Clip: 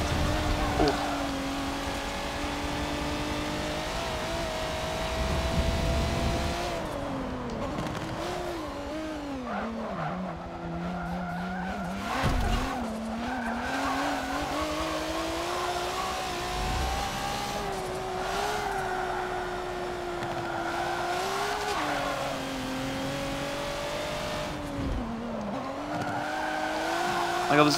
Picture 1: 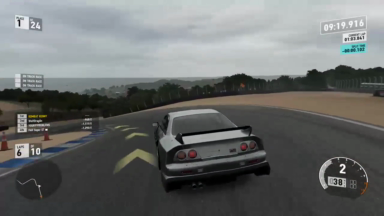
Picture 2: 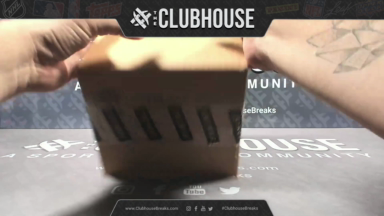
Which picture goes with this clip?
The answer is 1